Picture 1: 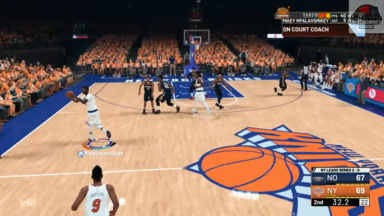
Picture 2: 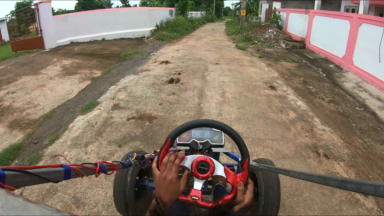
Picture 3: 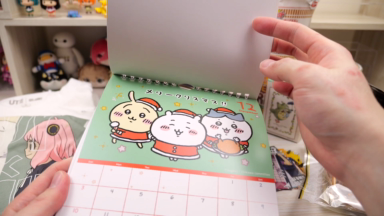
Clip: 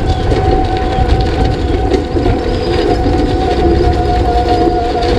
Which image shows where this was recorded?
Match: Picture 2